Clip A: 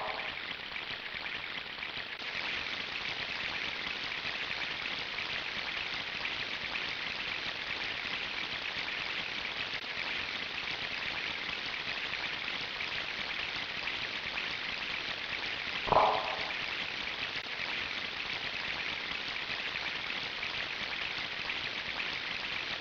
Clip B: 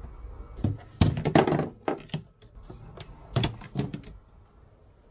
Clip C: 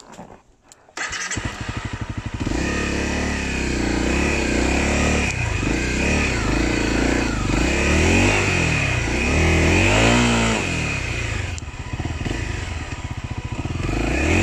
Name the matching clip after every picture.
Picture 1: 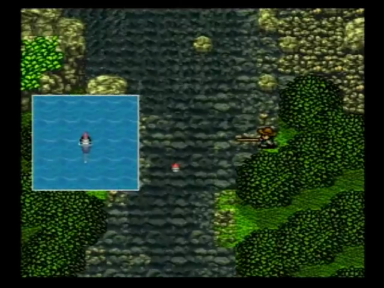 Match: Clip A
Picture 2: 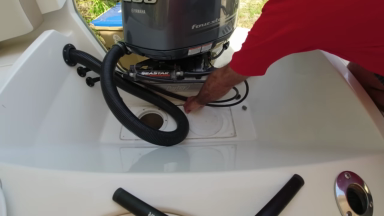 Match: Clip B